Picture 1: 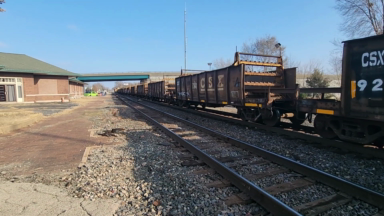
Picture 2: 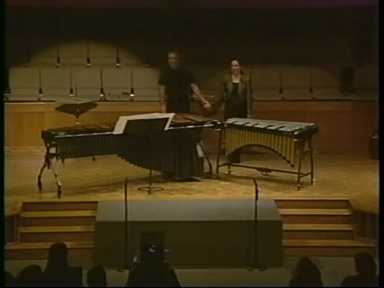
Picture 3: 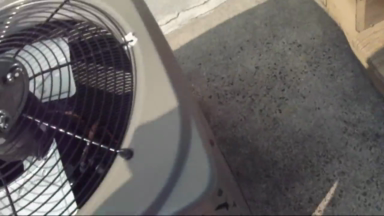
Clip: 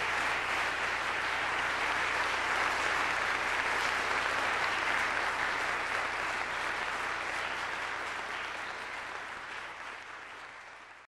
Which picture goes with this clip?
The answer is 2